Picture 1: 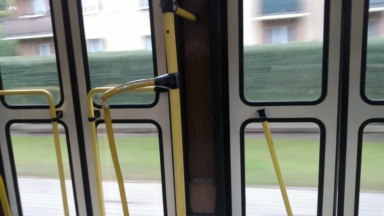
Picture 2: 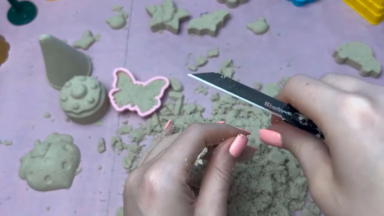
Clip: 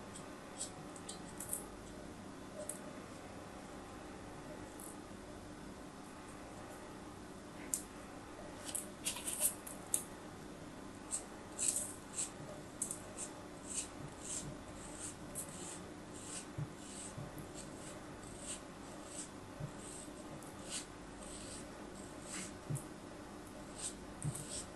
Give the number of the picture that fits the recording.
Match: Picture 2